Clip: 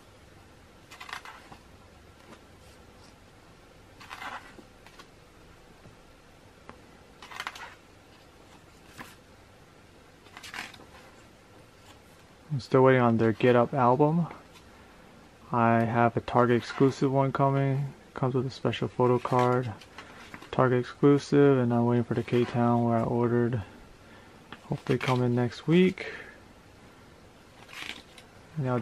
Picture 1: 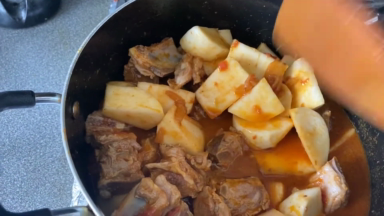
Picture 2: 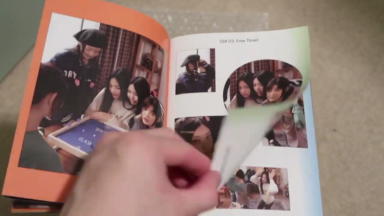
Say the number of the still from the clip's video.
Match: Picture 2